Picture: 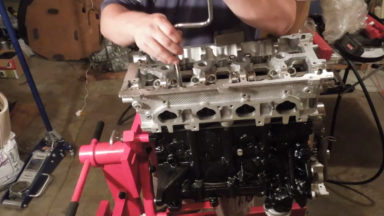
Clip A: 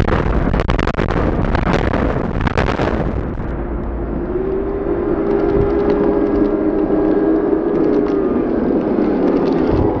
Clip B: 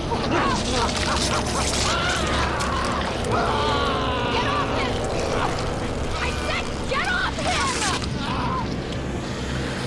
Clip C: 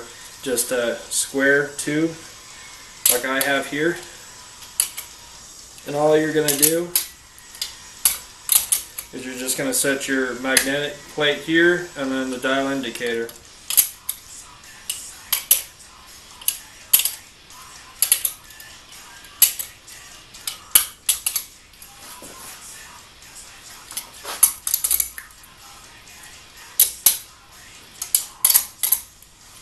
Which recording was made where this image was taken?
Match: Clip C